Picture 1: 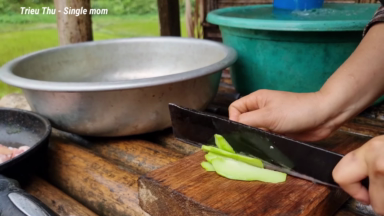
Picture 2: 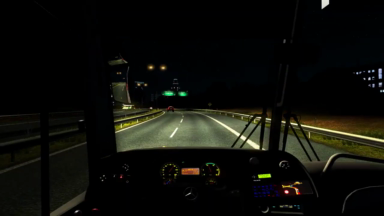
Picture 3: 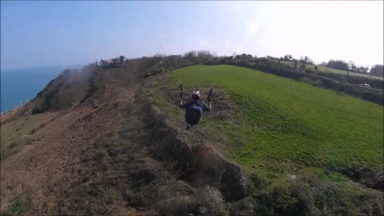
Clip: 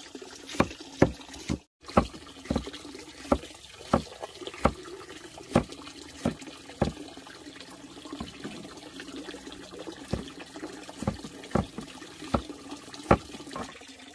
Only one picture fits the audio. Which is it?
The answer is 1